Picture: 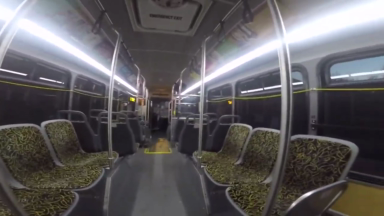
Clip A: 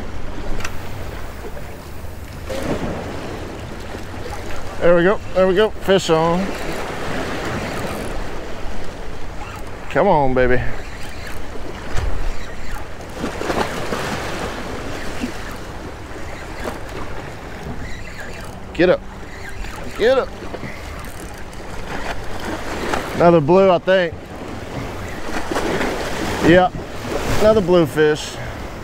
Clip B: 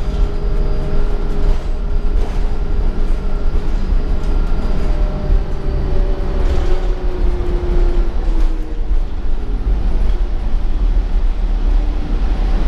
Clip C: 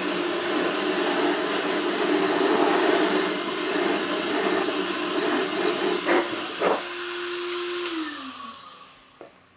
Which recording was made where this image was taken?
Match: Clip B